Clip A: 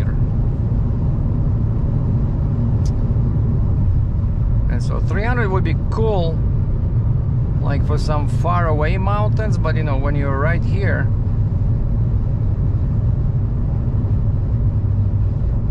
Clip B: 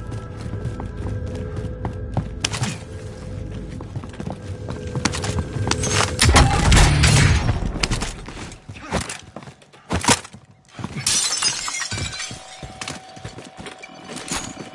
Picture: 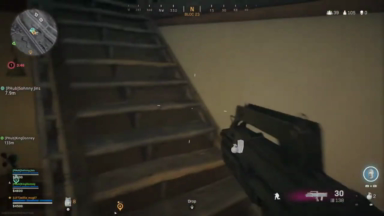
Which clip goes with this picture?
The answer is B